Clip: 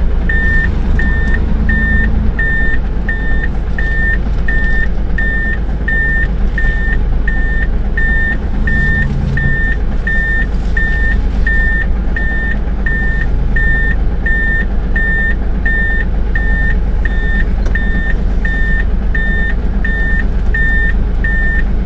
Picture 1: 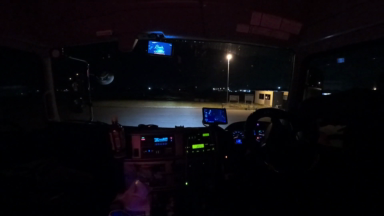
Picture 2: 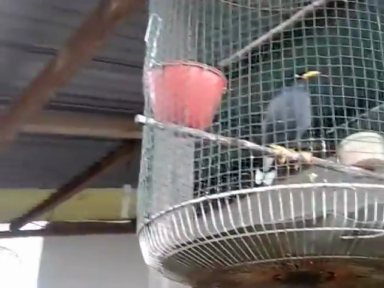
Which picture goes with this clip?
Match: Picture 1